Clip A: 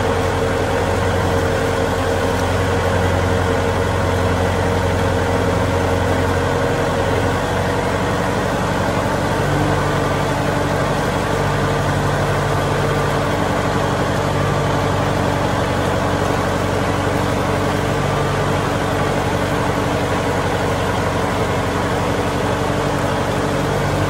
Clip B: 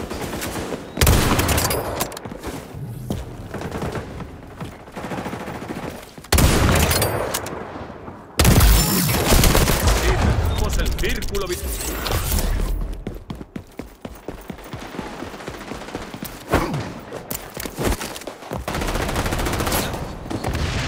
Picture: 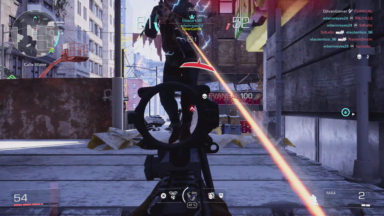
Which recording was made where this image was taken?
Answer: B